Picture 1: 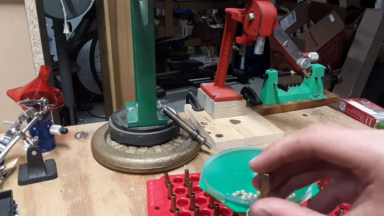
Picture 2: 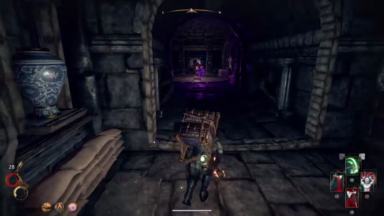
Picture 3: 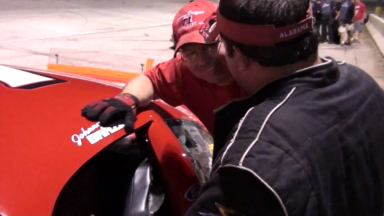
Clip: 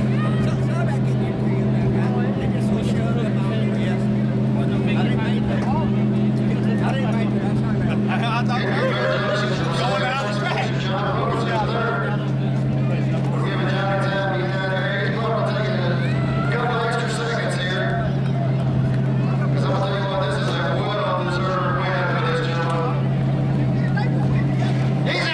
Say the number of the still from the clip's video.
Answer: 3